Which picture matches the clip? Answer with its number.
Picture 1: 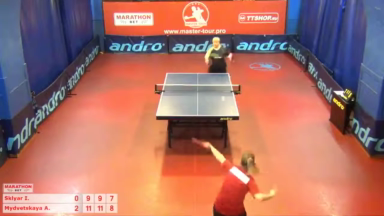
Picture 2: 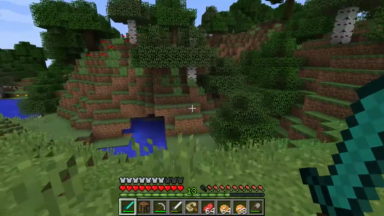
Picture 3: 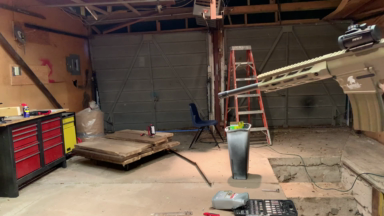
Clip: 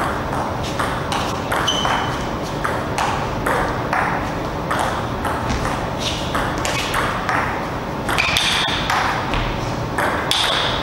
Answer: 1